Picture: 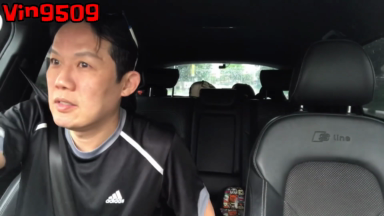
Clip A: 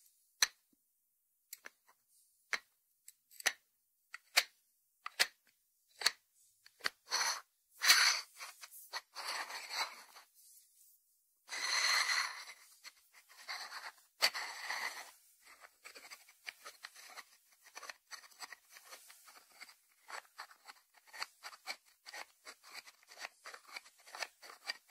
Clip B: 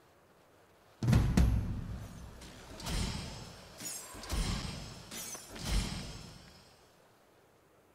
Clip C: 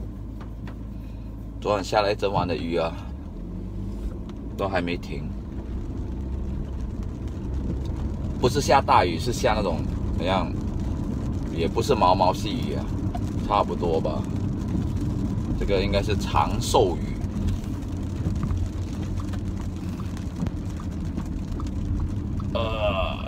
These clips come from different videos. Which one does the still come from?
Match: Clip C